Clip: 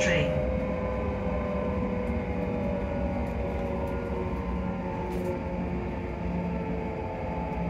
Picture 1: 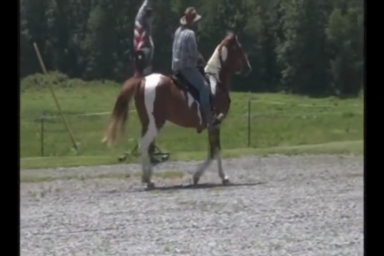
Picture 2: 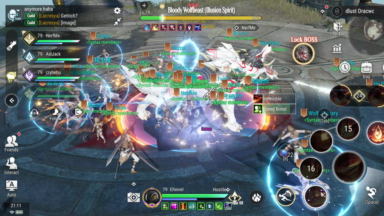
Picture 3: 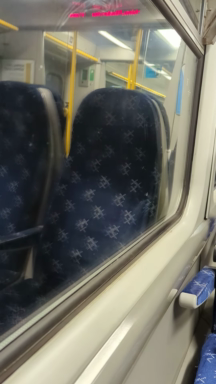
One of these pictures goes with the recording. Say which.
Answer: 3